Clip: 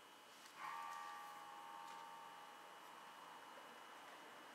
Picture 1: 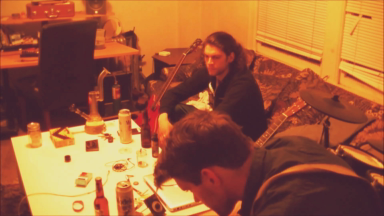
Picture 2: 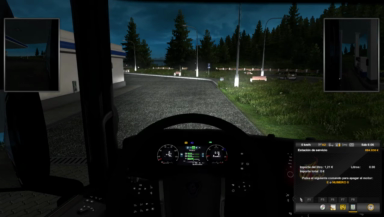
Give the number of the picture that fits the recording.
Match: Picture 1